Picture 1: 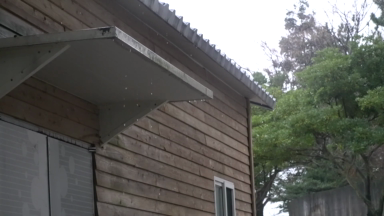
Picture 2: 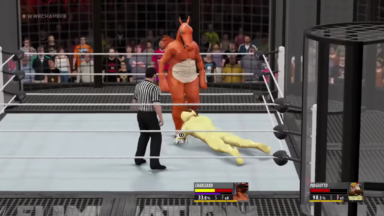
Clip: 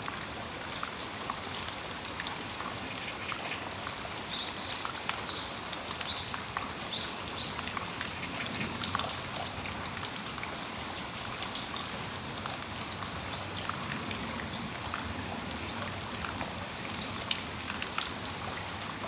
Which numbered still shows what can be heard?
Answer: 1